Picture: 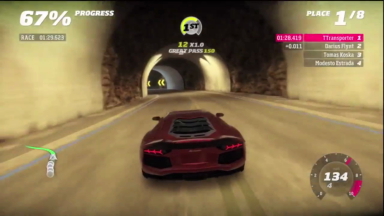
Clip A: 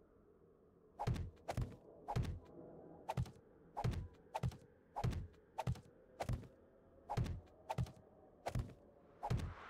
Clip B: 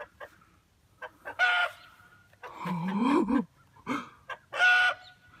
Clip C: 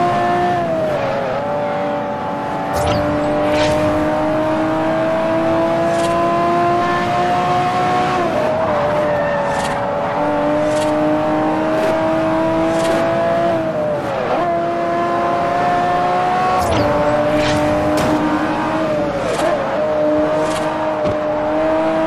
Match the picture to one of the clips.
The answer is C